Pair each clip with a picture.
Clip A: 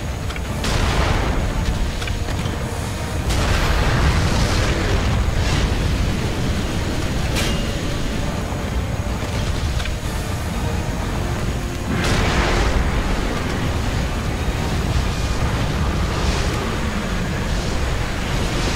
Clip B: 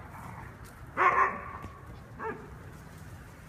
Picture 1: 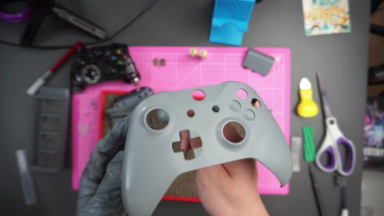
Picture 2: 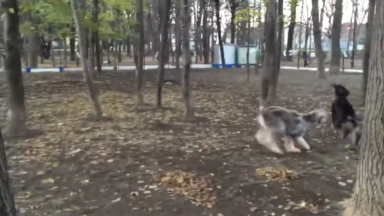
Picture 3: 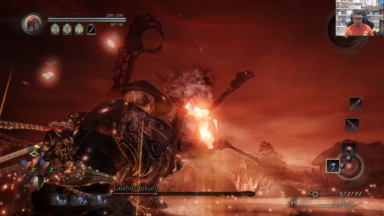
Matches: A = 3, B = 2